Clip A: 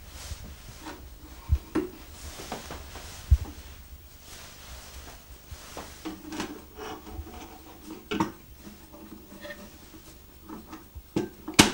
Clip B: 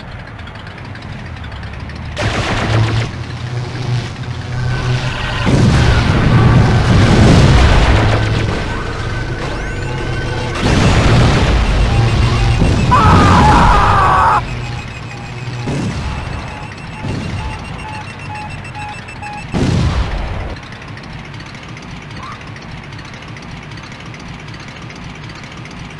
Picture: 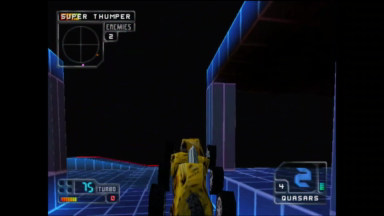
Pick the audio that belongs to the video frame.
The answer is B